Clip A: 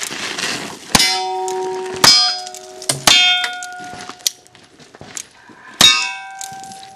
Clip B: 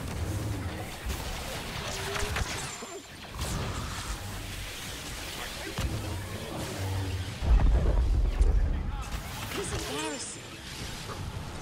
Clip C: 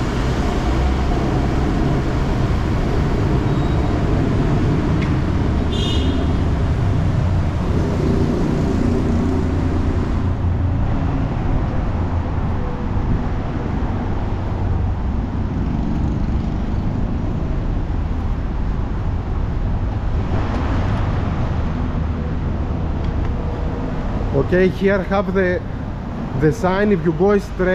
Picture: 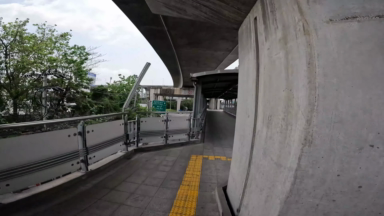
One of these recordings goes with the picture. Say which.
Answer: C